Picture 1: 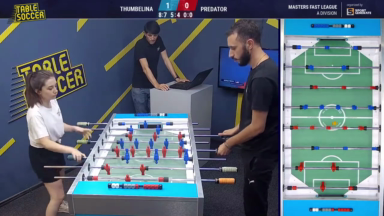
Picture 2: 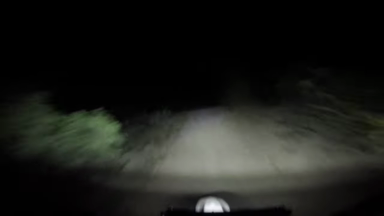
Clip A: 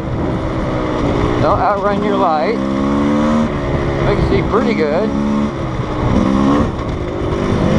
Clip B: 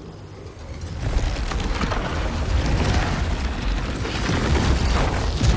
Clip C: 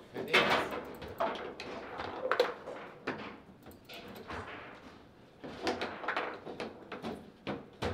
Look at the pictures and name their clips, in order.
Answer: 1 C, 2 A